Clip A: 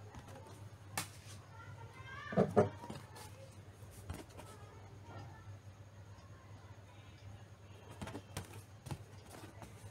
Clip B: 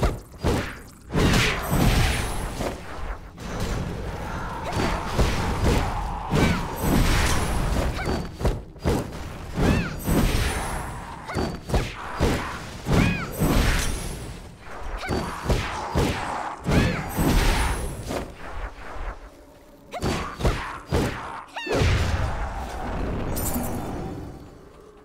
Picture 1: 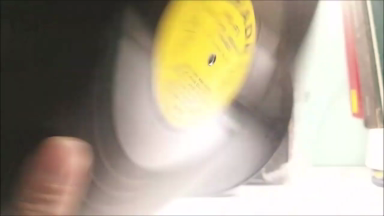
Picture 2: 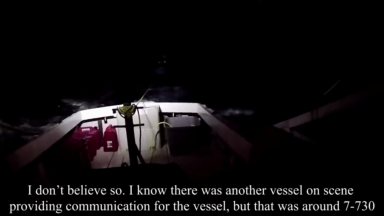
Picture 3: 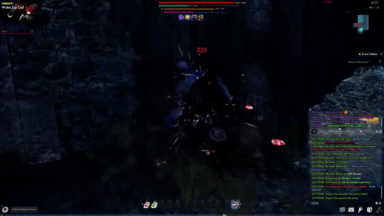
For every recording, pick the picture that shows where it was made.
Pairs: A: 1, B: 3